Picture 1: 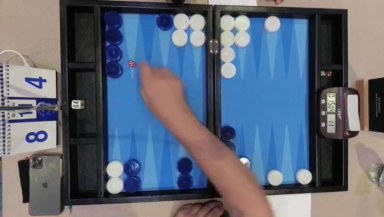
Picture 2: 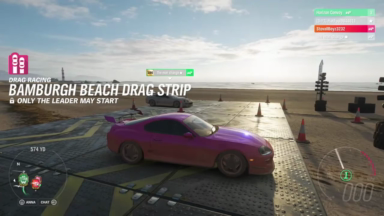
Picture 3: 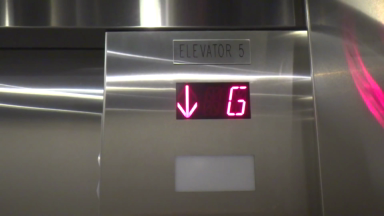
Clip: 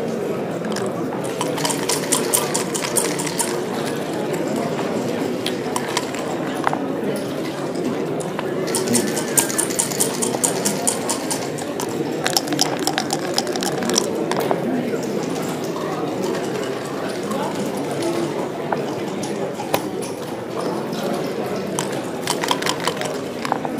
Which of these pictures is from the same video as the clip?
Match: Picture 1